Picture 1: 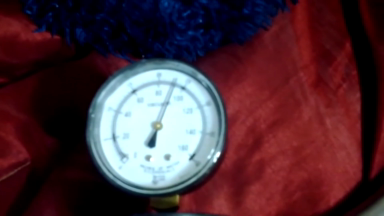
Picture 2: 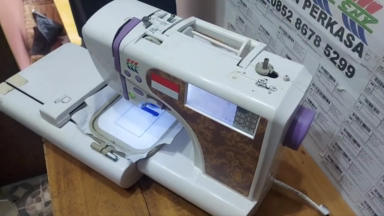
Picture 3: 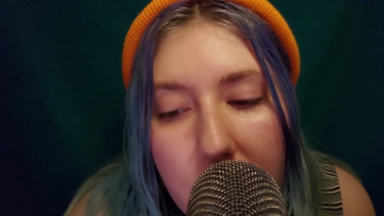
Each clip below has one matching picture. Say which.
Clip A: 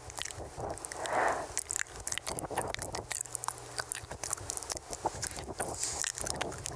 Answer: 3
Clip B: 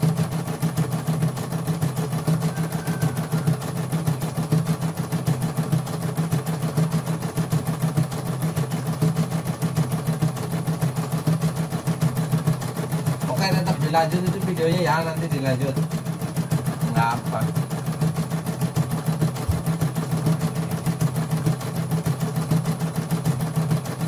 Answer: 2